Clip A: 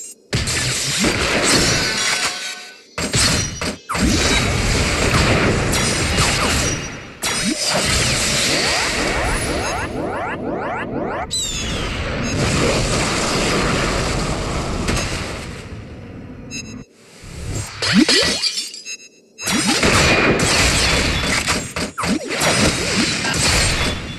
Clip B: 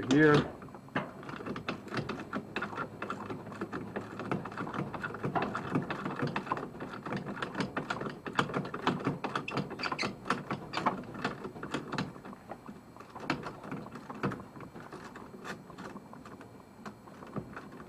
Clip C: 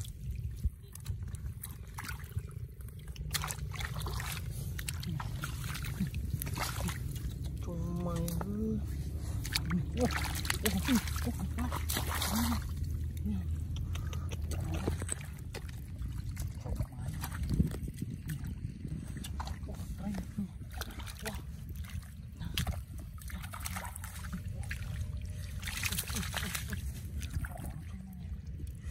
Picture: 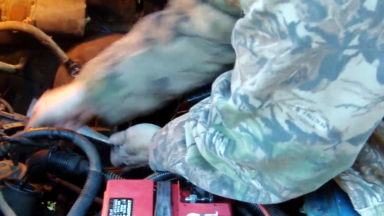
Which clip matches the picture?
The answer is B